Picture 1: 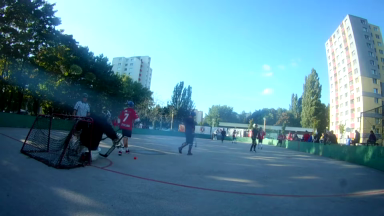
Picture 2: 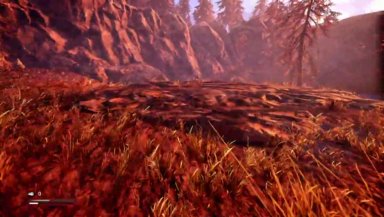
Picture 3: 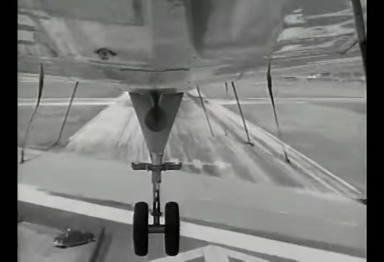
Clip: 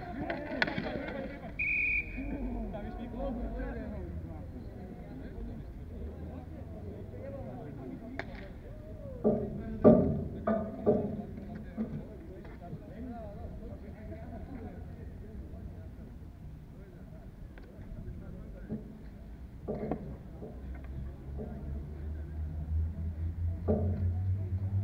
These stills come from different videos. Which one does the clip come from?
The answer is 1